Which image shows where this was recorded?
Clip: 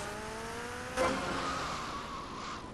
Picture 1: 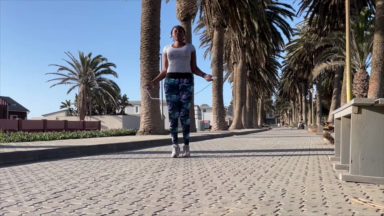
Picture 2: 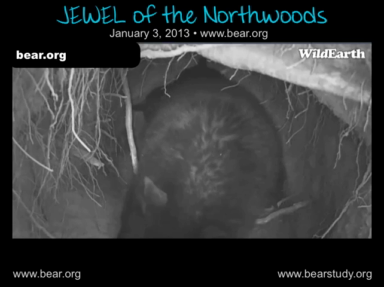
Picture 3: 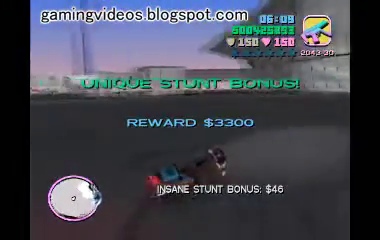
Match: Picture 3